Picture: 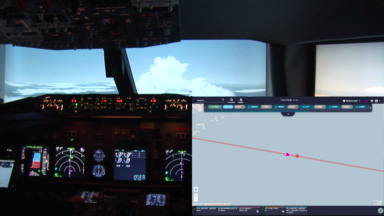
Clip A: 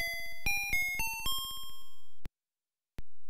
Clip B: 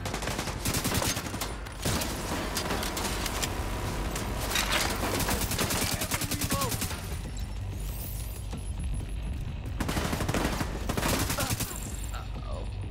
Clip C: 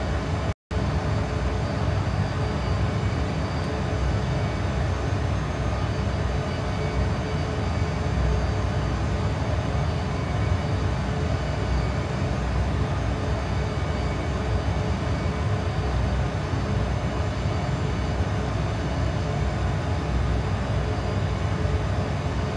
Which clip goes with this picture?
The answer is C